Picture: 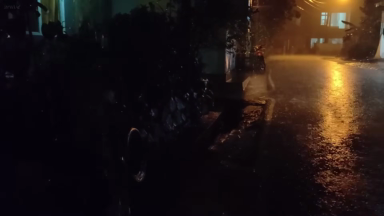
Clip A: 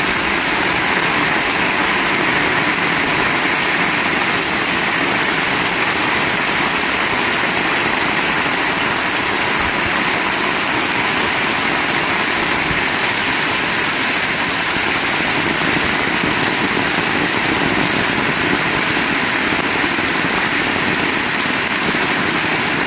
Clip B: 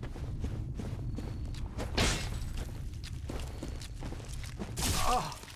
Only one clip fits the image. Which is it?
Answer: A